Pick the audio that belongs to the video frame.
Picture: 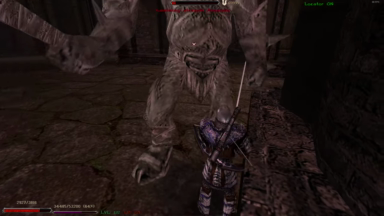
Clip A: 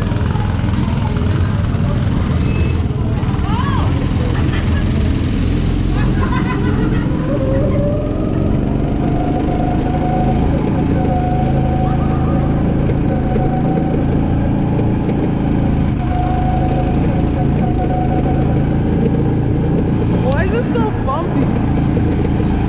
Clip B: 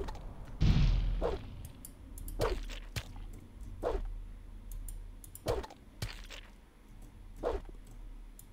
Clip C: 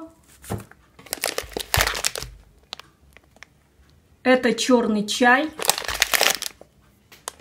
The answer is B